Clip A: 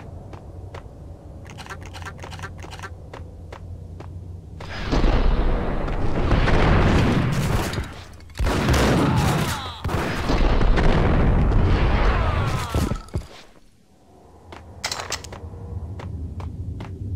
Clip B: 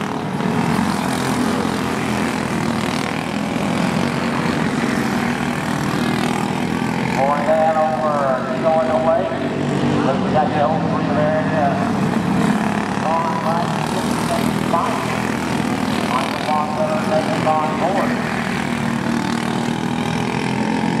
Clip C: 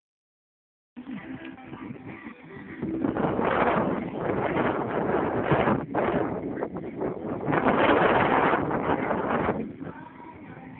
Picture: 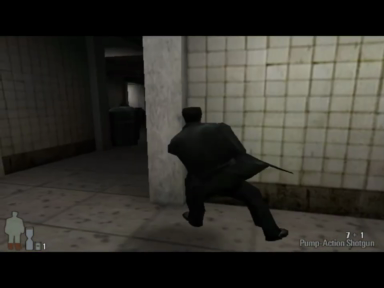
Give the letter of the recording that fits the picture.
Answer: A